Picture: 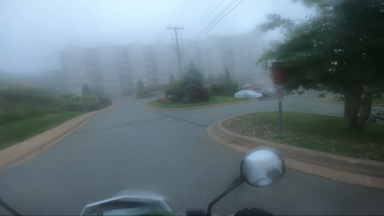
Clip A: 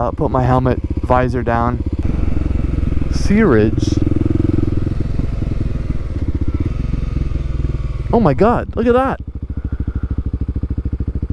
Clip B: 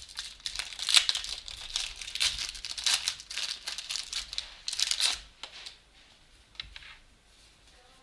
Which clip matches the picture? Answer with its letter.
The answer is A